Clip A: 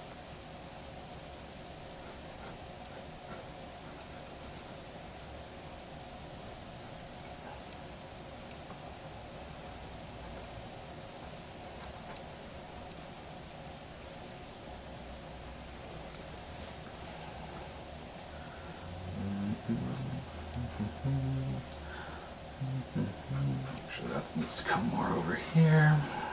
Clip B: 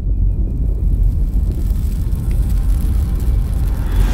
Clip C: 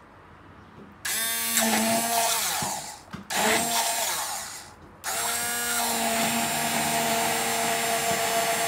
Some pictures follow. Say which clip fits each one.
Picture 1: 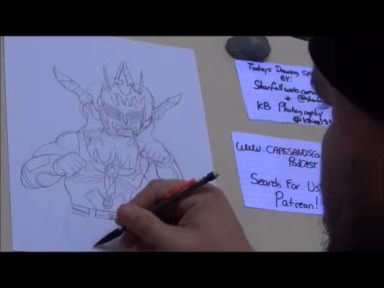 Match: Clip A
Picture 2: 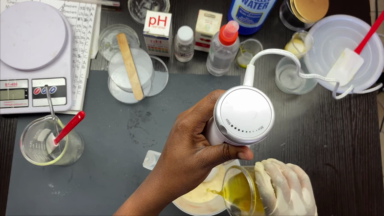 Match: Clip C